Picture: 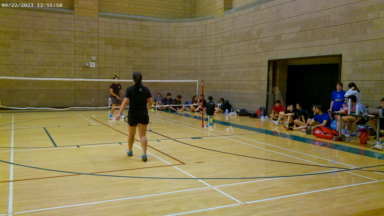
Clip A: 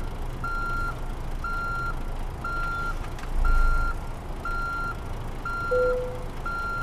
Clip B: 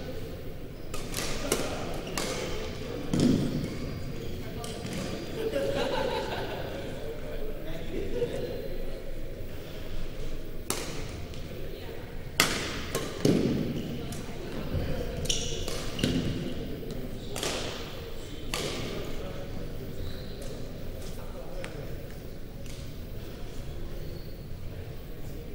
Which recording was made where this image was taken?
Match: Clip B